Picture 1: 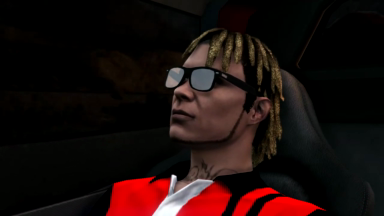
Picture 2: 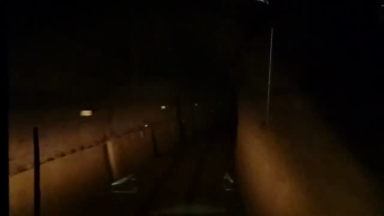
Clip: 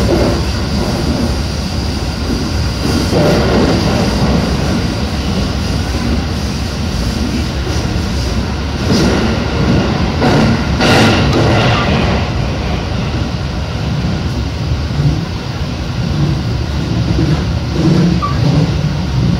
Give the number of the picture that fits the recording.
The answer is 2